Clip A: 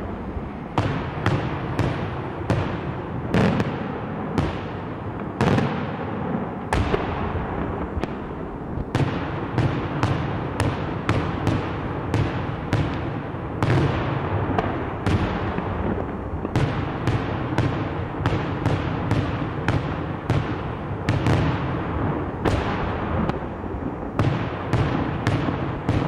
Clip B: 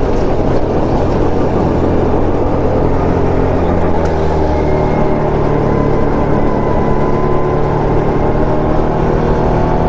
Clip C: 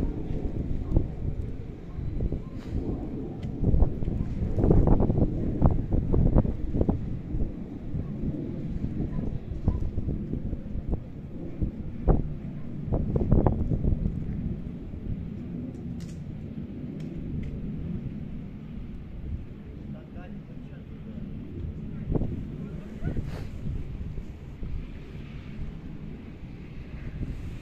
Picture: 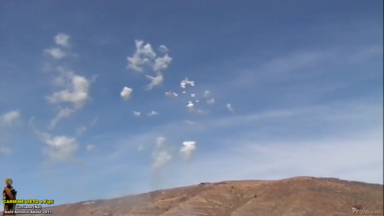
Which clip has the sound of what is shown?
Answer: A